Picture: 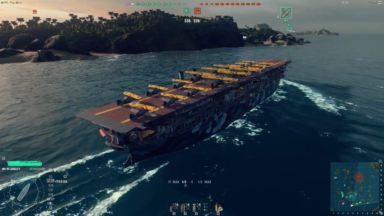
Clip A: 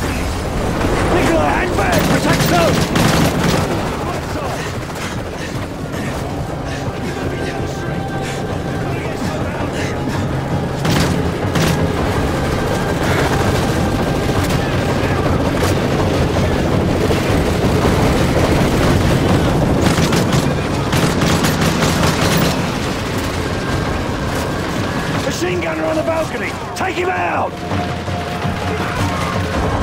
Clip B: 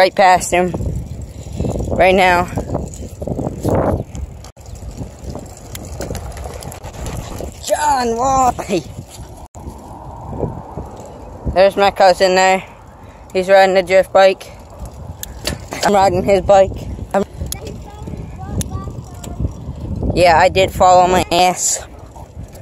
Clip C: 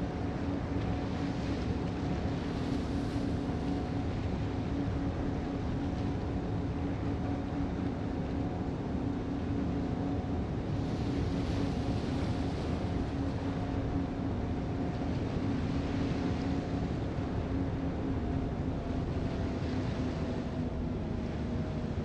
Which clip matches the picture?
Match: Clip C